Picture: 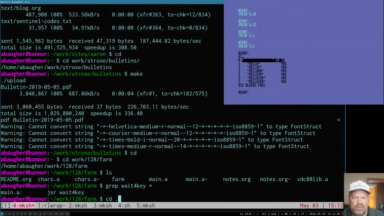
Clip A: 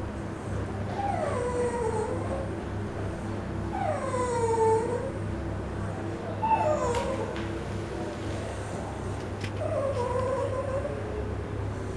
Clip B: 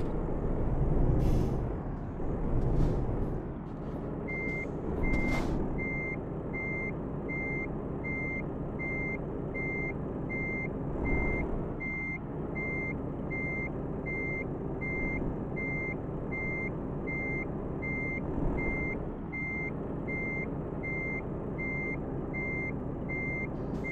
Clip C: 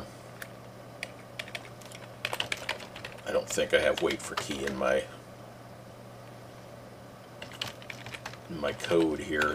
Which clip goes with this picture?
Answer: C